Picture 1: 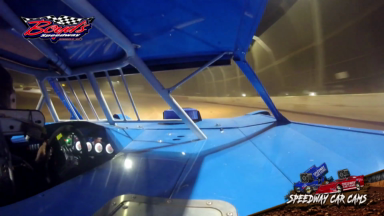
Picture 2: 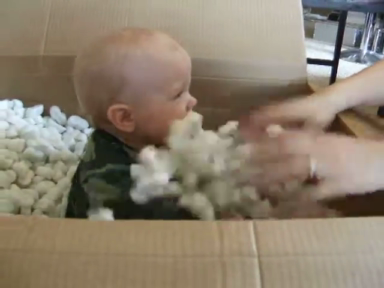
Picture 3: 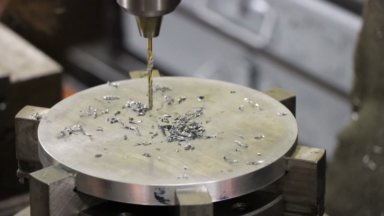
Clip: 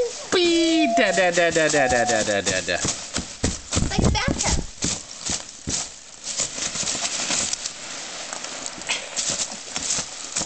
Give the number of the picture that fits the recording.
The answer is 2